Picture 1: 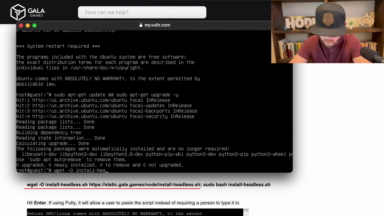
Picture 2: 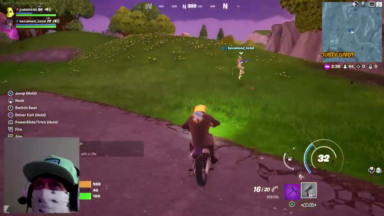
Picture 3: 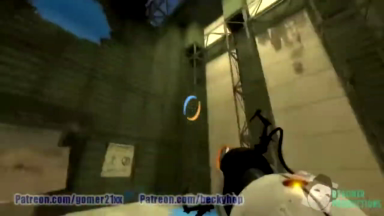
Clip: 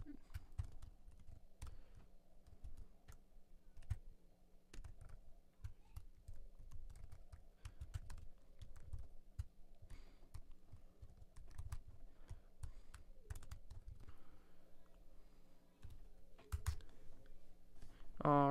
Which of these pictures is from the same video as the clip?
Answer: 1